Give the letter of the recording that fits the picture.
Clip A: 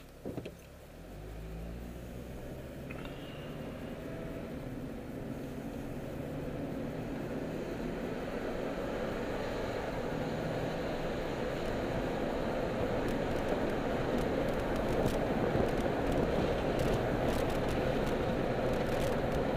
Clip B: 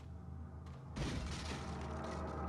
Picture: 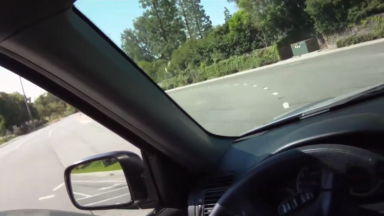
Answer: A